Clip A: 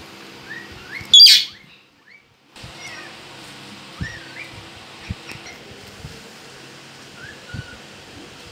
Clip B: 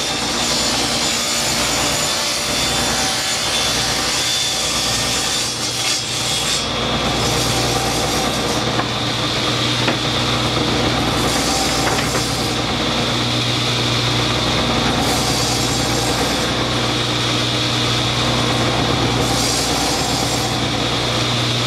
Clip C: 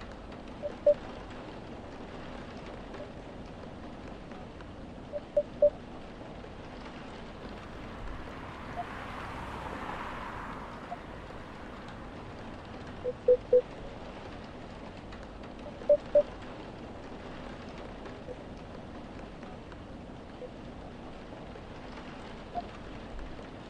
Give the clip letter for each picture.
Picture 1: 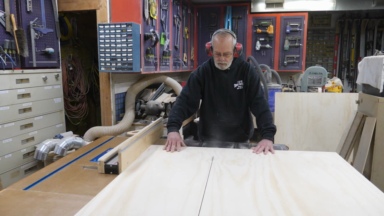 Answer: B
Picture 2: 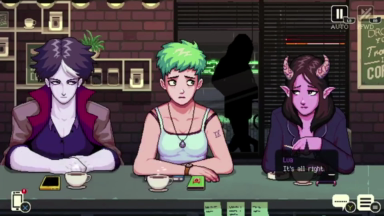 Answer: C